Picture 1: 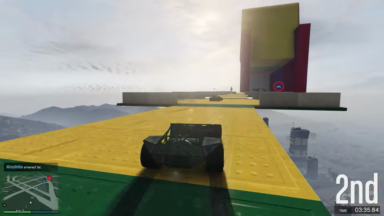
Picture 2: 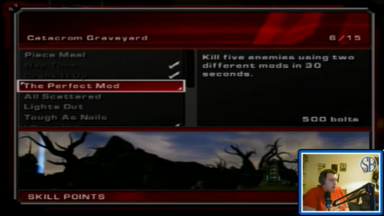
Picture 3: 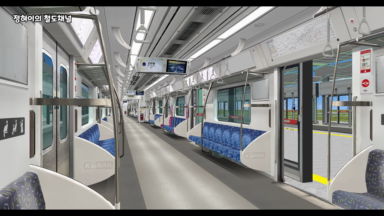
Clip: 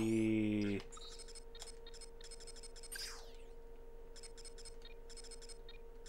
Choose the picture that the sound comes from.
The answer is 2